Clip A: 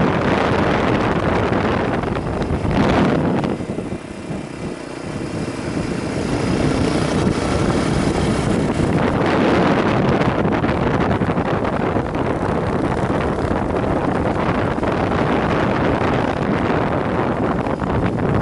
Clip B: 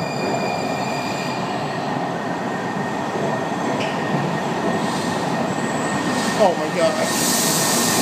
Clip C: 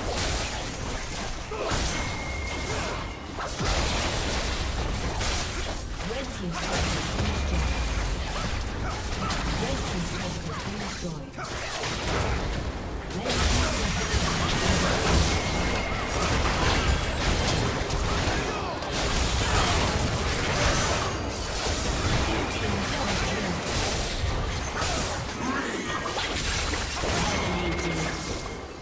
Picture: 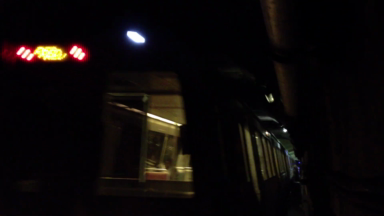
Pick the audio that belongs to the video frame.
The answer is B